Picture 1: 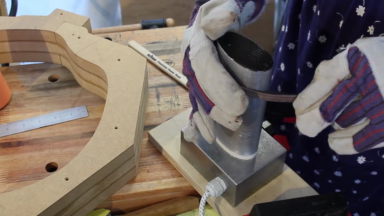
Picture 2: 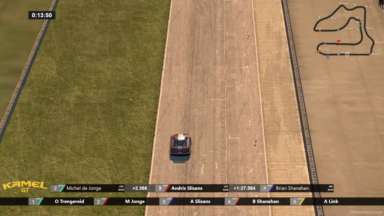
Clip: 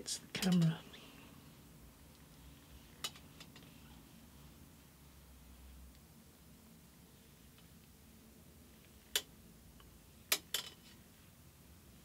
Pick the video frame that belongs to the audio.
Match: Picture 1